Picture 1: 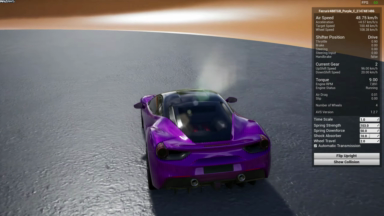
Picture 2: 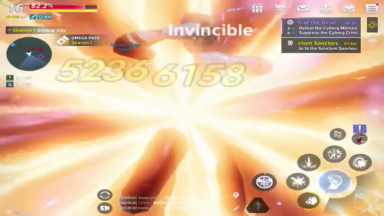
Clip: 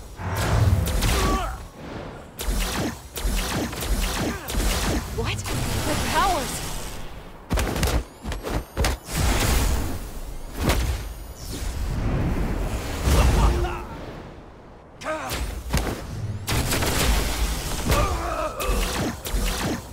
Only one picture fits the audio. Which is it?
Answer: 2